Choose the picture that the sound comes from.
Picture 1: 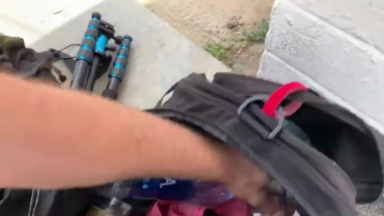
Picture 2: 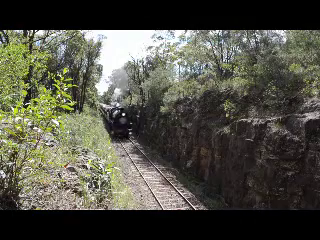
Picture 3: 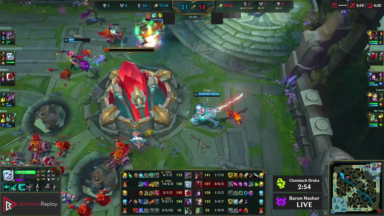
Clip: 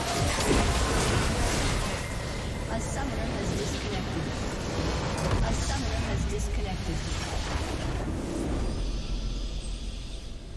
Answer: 3